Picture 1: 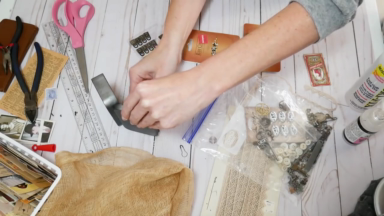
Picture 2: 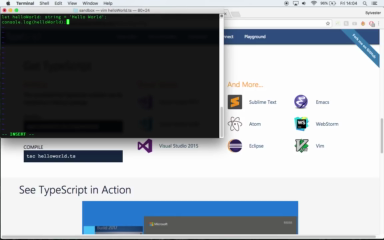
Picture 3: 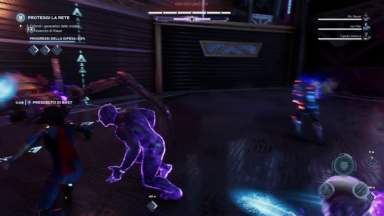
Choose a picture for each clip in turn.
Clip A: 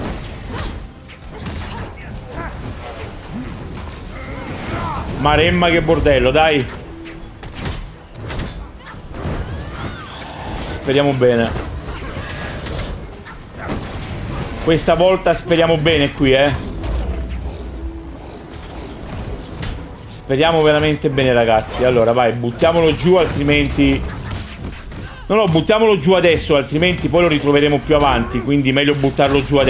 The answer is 3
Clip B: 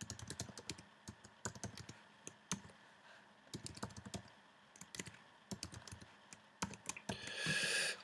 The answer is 2